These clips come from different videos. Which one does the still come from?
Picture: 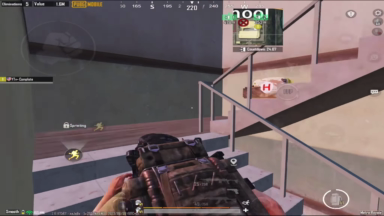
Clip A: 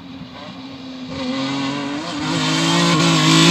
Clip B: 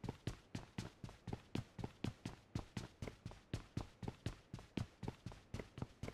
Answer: B